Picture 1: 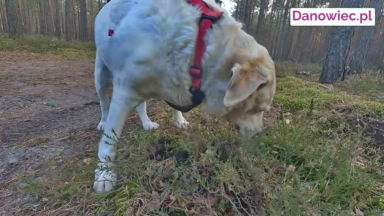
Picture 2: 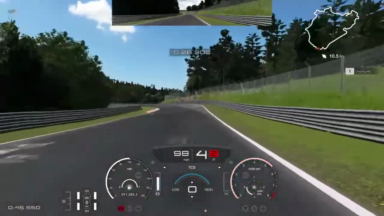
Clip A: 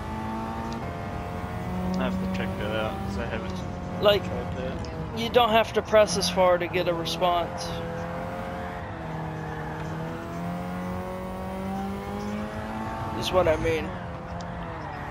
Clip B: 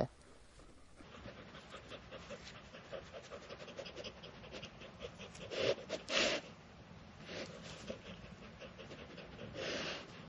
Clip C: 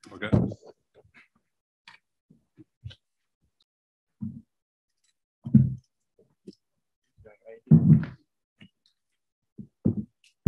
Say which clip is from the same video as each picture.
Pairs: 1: B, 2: A